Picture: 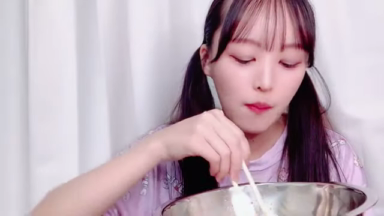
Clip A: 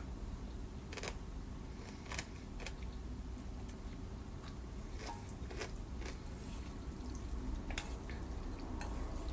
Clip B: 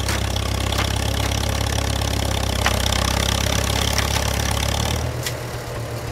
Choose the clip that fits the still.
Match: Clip A